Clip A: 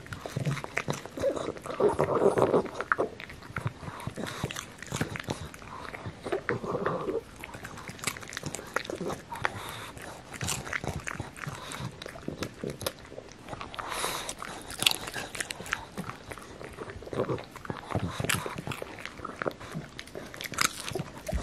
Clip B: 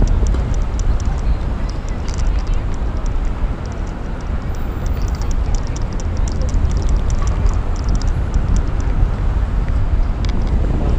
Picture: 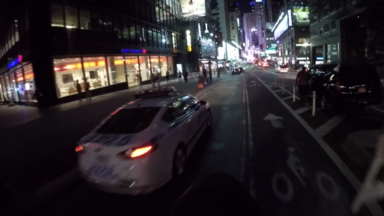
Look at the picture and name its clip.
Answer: B